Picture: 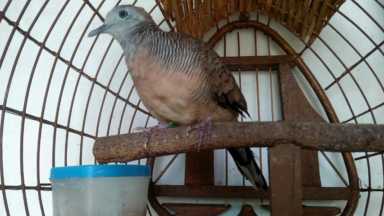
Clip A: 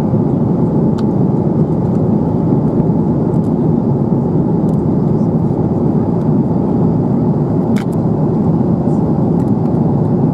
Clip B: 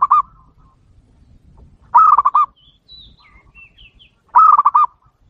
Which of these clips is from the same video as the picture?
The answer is B